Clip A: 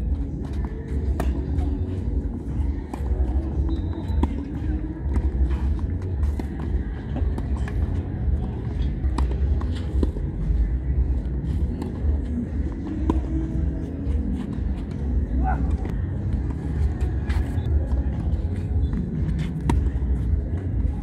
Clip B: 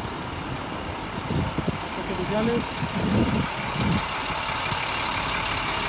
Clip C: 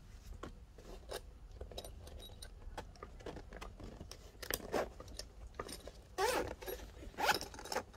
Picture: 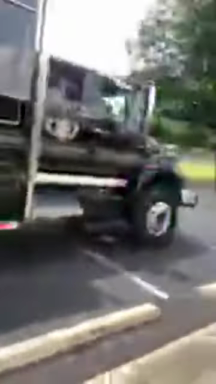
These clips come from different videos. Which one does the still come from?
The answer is B